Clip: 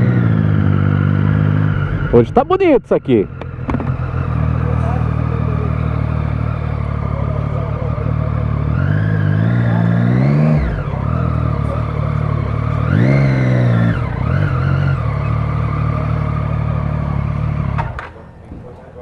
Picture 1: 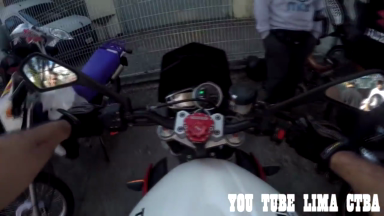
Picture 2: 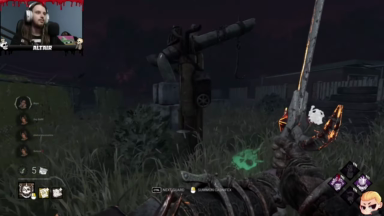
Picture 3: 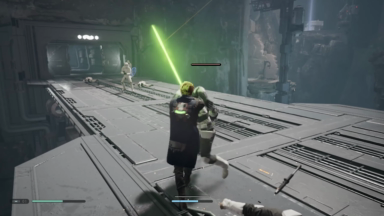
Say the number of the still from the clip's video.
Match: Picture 1